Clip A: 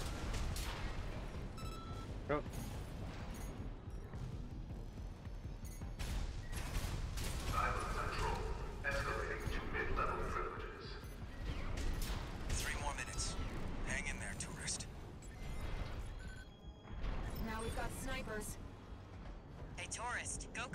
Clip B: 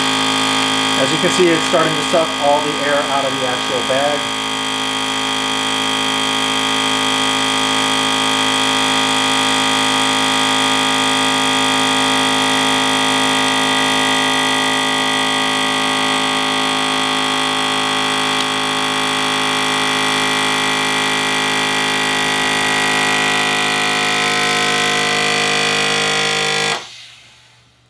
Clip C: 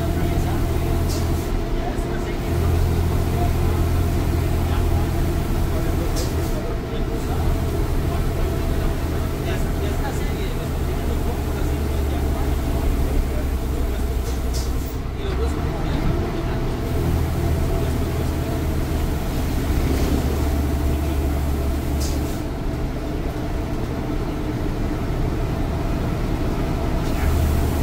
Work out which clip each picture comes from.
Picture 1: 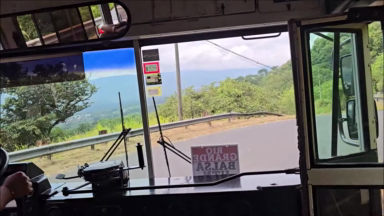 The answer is C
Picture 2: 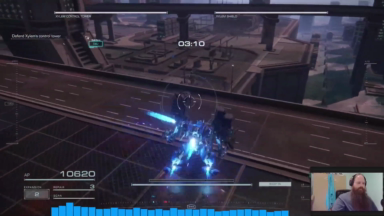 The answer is A